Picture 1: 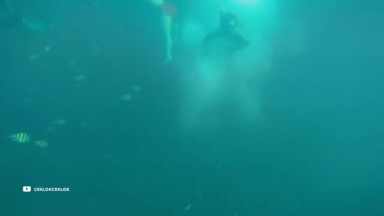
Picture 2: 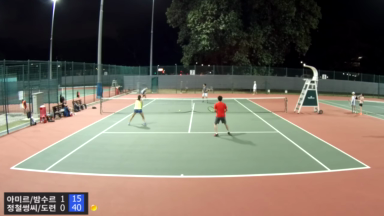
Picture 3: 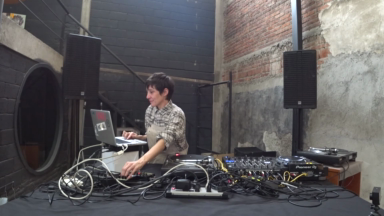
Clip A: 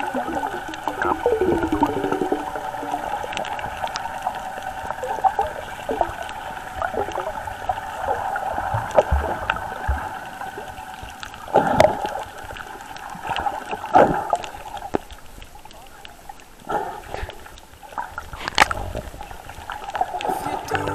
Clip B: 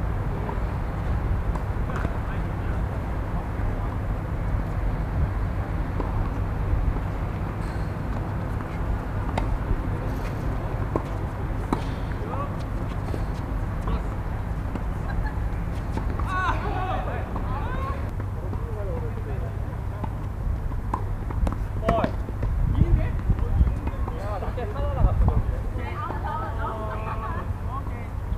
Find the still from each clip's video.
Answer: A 1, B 2